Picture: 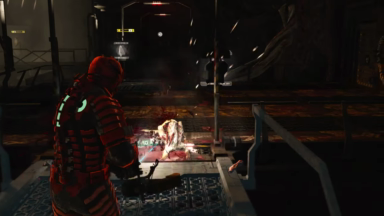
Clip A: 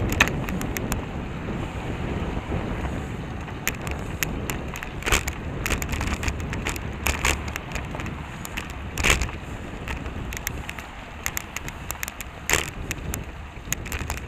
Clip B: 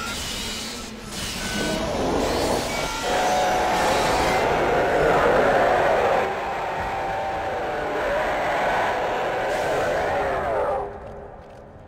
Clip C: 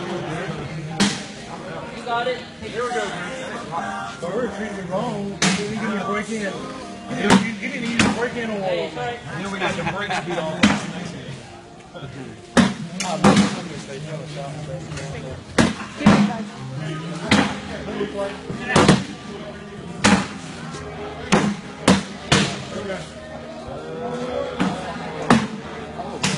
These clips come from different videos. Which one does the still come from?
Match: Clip B